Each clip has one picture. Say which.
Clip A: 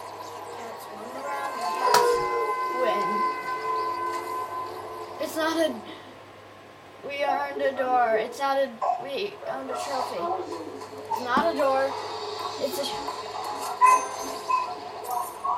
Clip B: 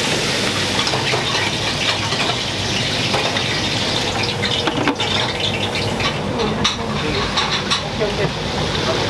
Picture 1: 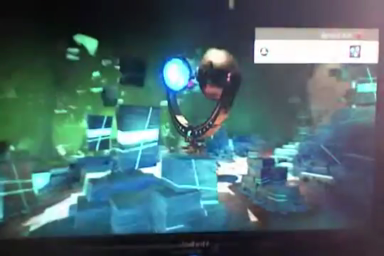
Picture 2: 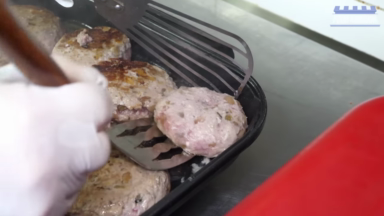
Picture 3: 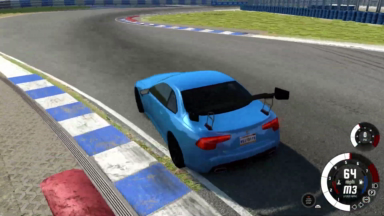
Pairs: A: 1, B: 2